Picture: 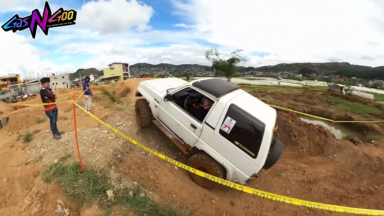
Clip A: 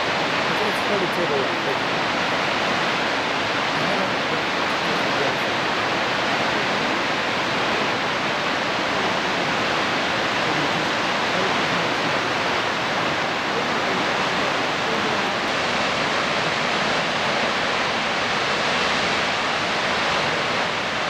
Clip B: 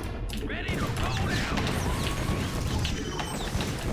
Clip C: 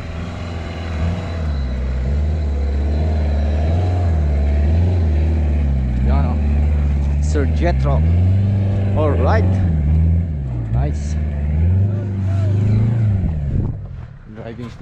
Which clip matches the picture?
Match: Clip C